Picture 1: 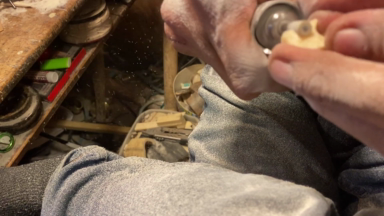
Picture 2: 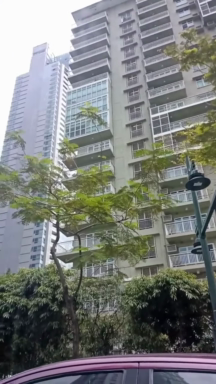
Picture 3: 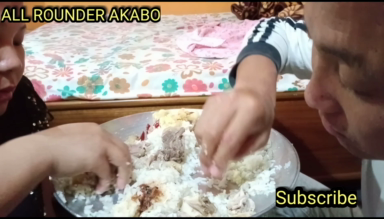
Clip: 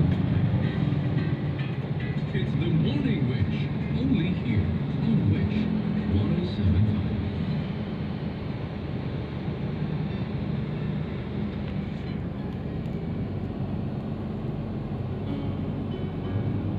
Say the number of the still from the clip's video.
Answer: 2